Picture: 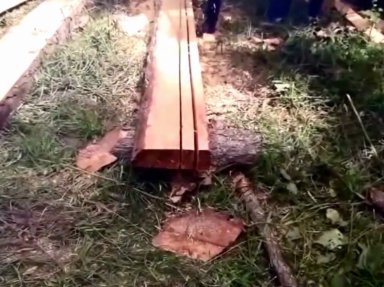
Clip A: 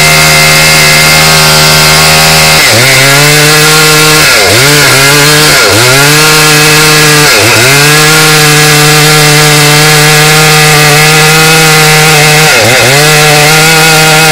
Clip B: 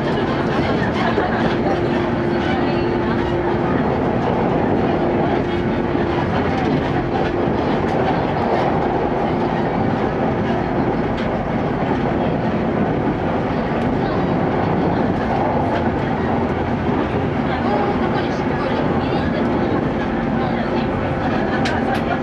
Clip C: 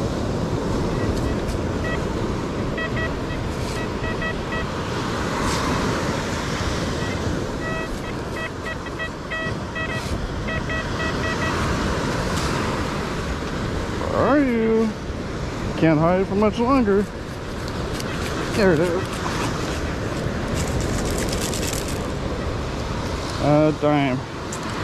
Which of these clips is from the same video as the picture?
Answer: A